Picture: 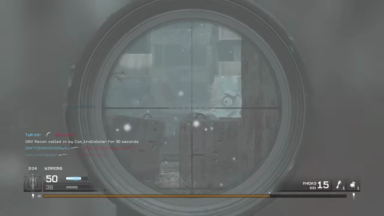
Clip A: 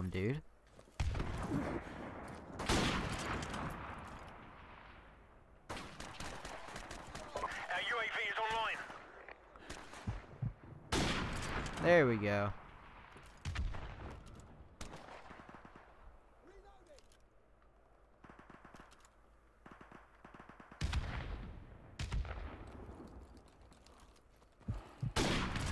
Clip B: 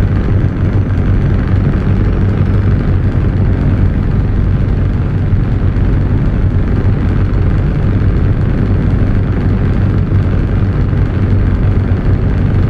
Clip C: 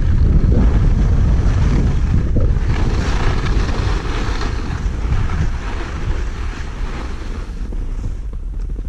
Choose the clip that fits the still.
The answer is A